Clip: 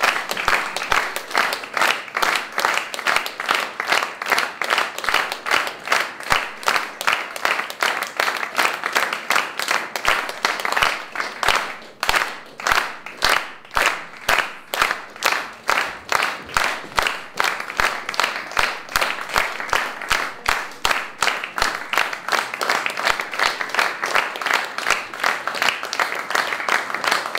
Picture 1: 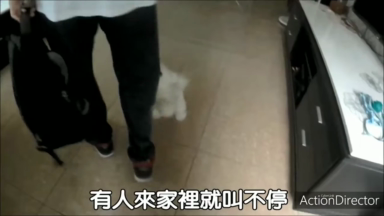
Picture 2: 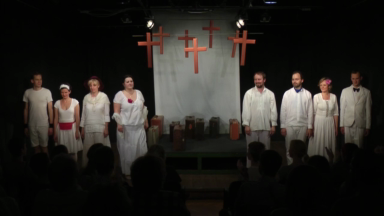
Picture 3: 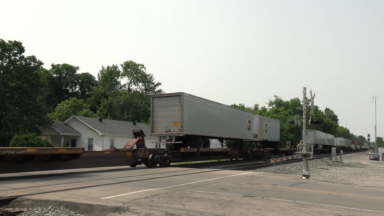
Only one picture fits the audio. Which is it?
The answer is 2